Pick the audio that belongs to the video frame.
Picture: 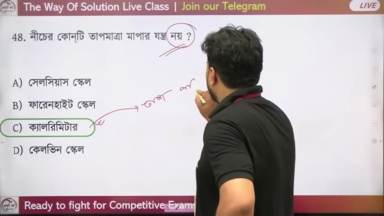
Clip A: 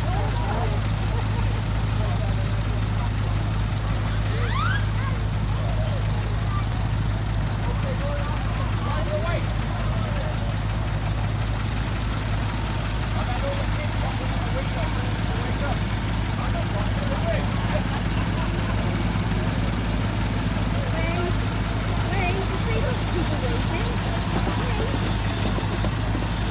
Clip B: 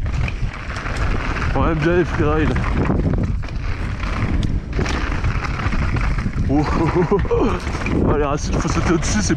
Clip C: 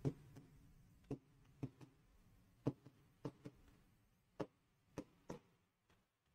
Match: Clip C